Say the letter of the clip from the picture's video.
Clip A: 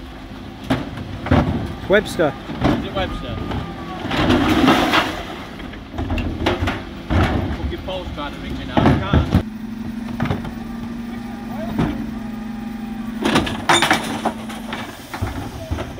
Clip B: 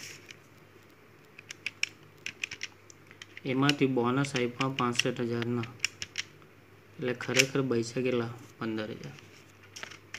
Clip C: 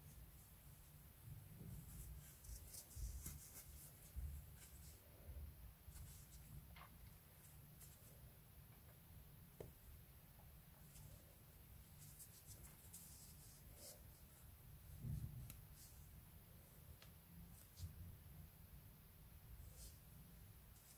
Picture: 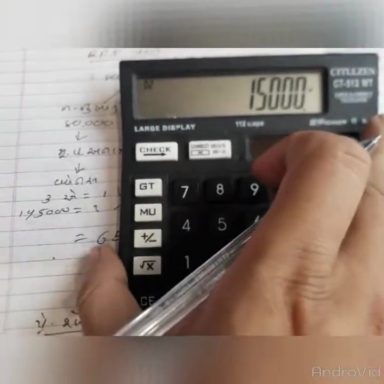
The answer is B